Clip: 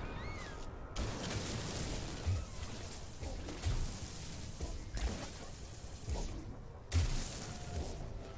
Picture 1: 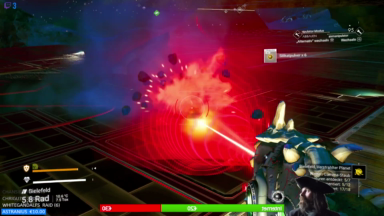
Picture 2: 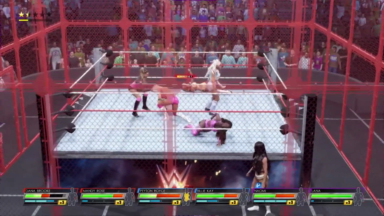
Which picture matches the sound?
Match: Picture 1